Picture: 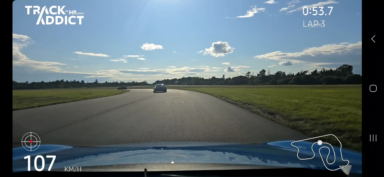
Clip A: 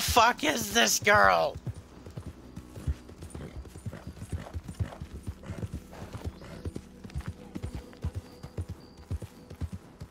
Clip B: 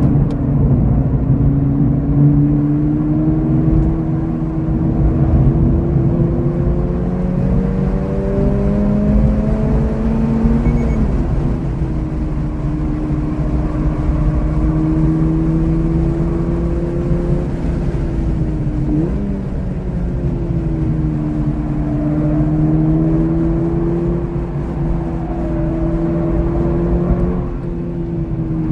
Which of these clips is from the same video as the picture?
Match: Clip B